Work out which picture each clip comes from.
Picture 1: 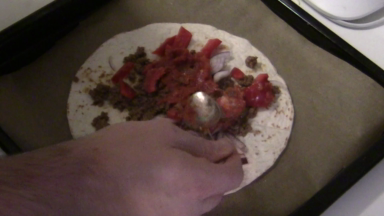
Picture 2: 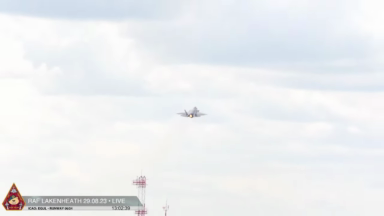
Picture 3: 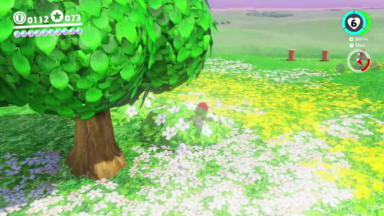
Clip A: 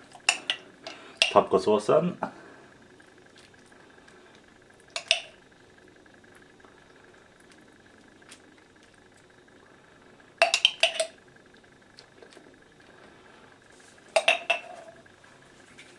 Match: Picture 1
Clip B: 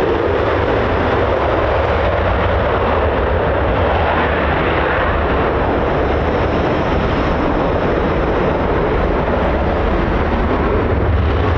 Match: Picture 2